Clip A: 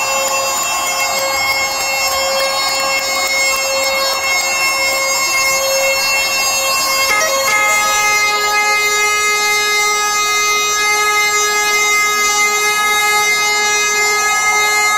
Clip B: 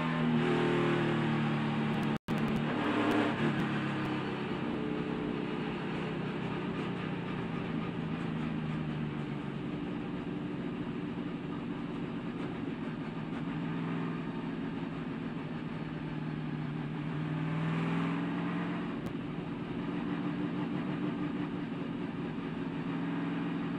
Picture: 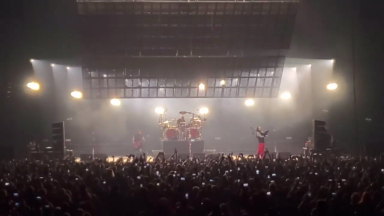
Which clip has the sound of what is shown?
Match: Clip A